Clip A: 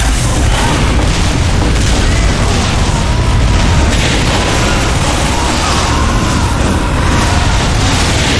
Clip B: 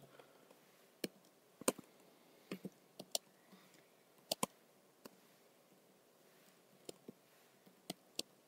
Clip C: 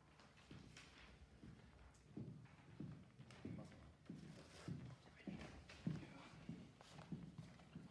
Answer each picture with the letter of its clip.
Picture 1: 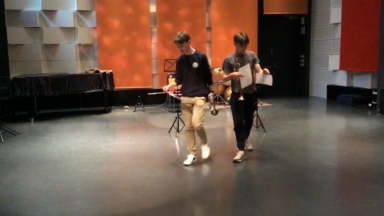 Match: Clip C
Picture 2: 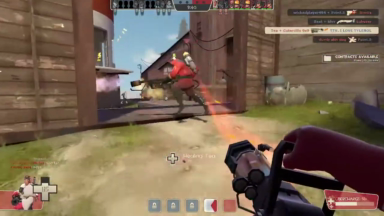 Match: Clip A